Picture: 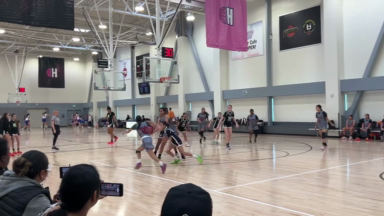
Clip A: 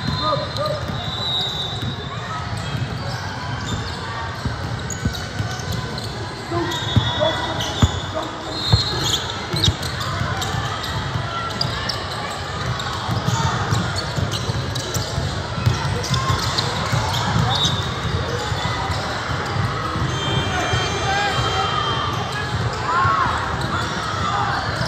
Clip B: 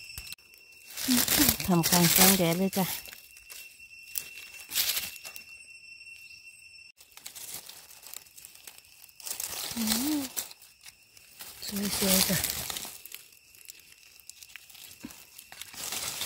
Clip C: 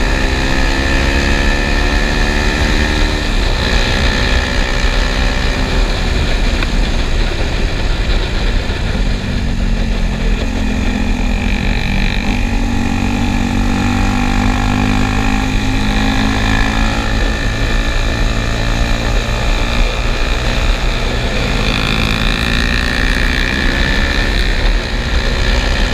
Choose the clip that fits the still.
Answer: A